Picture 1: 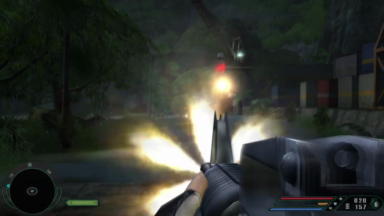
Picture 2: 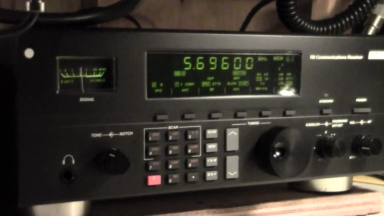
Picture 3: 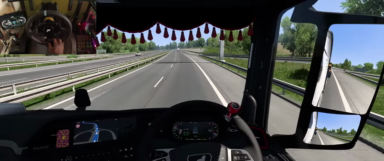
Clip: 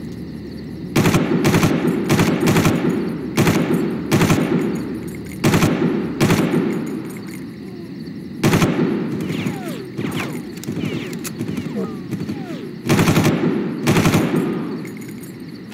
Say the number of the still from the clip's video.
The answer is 1